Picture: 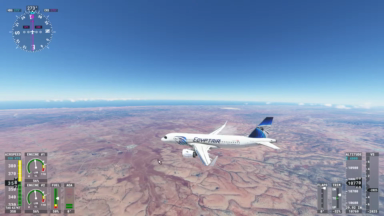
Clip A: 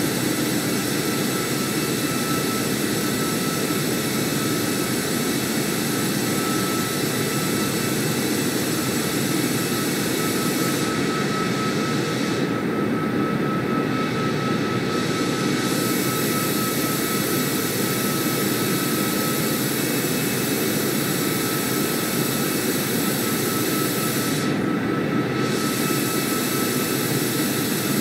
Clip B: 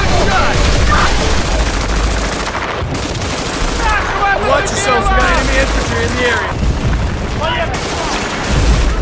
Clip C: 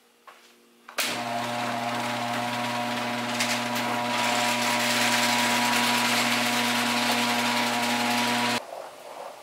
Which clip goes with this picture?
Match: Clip A